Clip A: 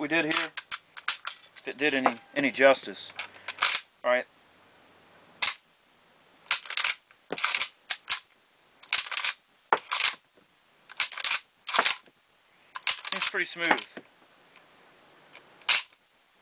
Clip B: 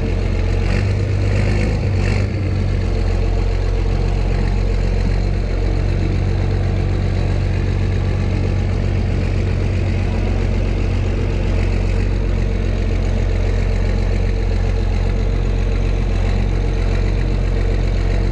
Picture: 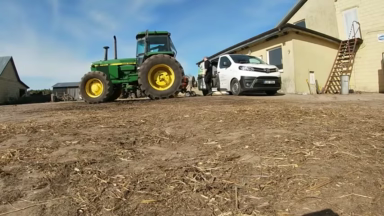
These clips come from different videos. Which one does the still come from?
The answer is B